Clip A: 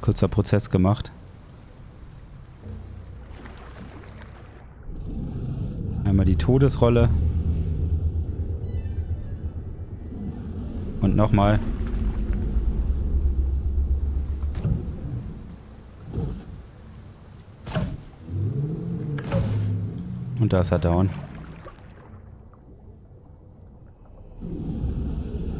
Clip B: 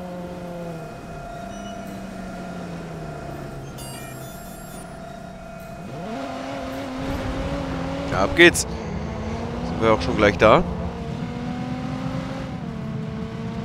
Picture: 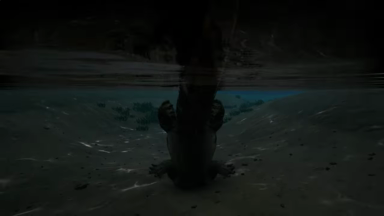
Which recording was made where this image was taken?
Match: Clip A